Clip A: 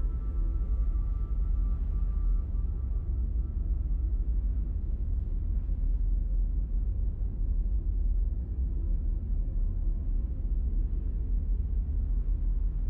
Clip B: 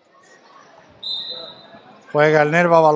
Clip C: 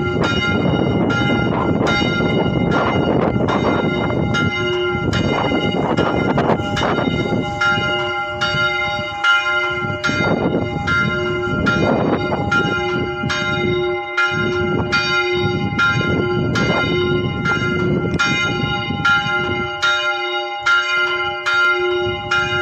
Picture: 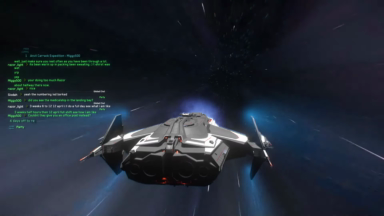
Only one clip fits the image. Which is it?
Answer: A